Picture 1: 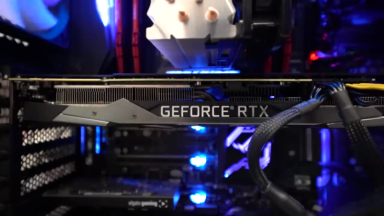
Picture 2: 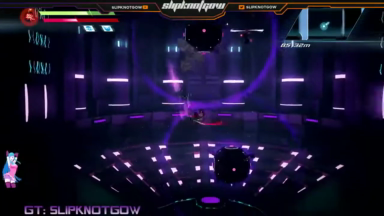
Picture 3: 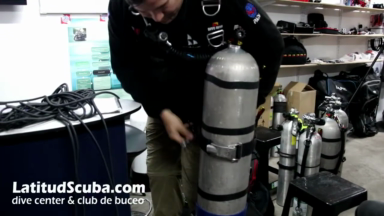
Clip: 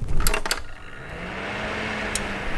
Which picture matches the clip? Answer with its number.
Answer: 1